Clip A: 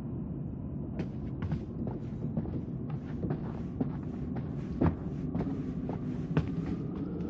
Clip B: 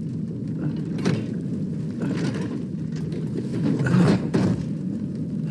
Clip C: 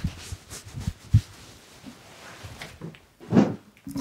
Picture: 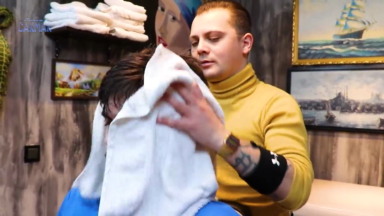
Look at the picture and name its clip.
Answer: C